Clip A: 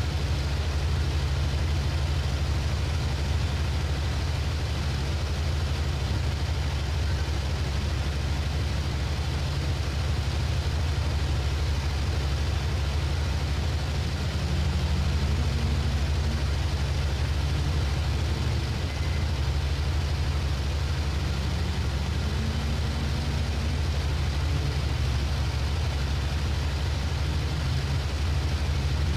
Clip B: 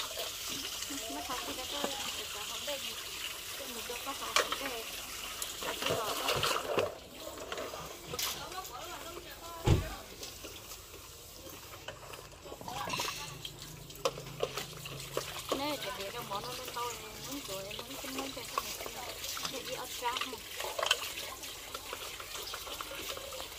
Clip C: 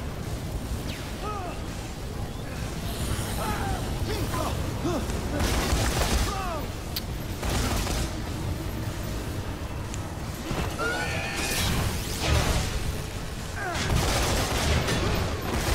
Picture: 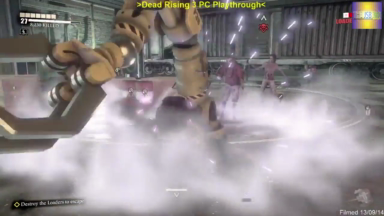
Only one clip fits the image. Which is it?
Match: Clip C